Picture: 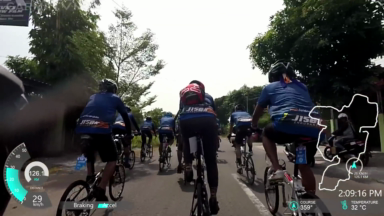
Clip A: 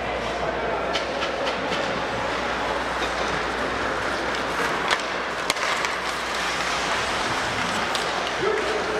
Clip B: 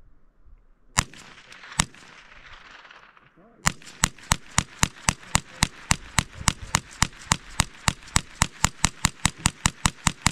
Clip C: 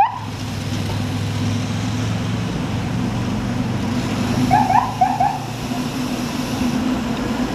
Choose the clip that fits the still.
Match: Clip C